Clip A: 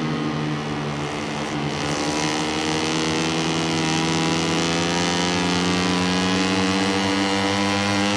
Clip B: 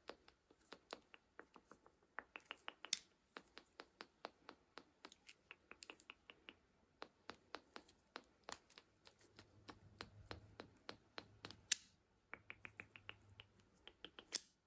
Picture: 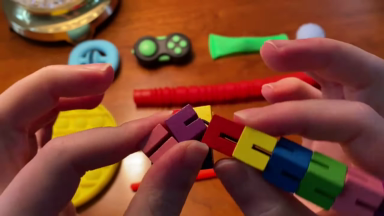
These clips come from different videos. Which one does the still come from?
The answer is B